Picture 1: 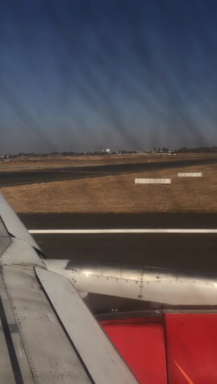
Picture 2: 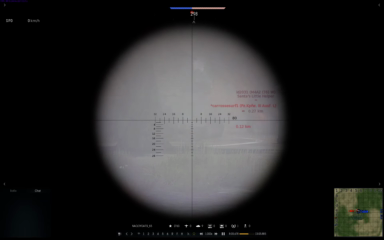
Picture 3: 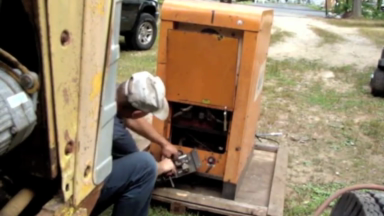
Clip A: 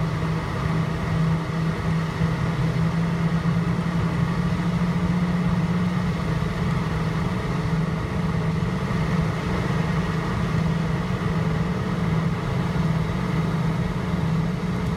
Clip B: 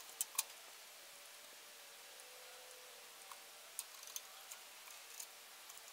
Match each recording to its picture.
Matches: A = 1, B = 3